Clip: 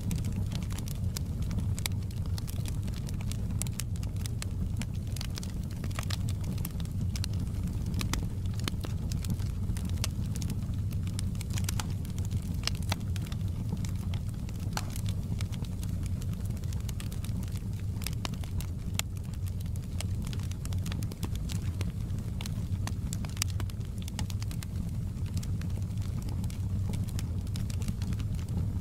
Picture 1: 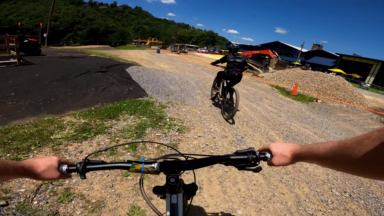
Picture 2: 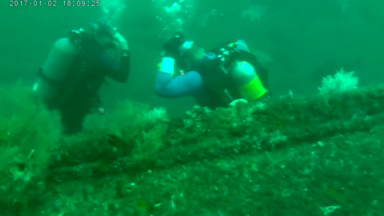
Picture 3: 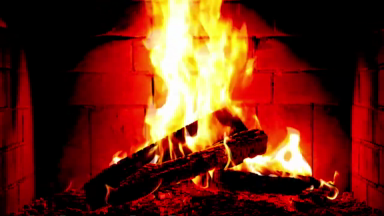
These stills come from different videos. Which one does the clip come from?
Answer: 3